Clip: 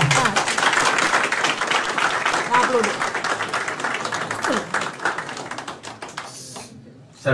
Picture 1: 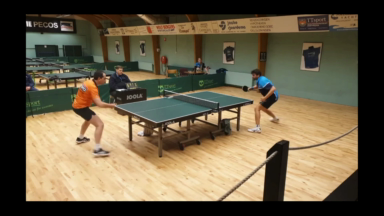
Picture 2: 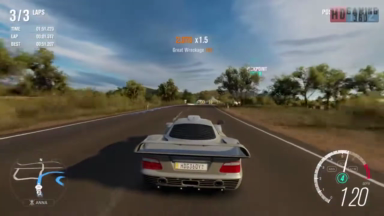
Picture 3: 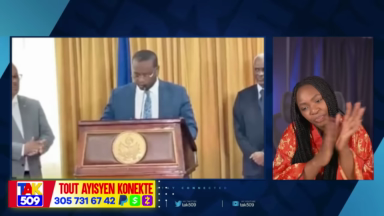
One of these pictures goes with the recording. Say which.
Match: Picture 3